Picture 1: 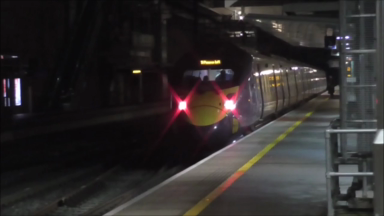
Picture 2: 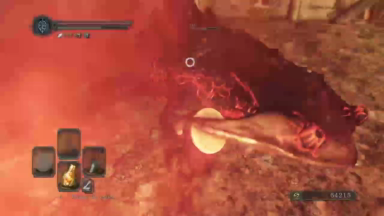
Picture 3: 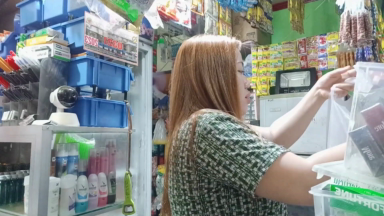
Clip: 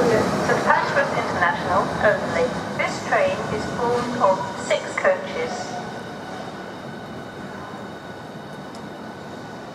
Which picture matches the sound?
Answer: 1